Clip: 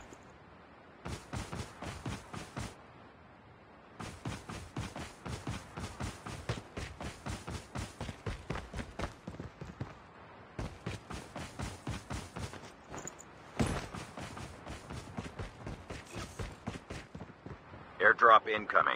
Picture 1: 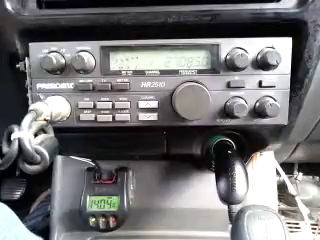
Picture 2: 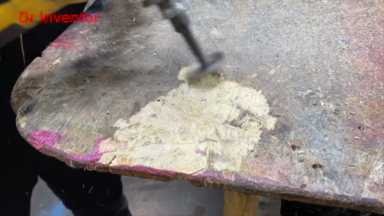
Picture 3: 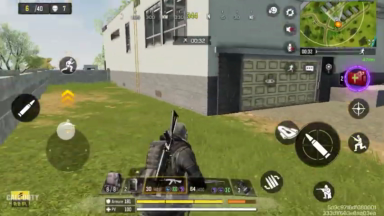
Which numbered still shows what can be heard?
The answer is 3